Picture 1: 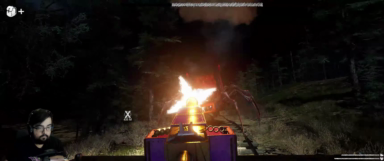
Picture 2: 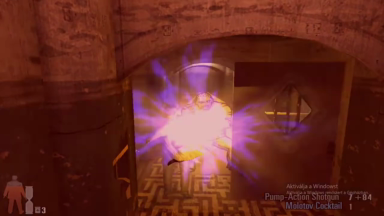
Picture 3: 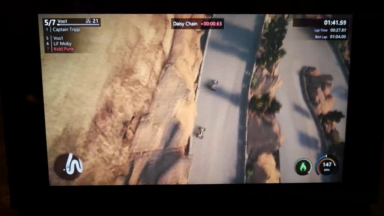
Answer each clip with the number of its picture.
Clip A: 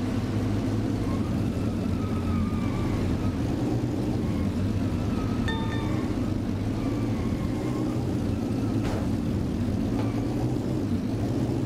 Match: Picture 3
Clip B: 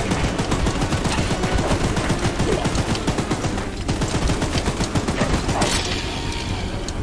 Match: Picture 1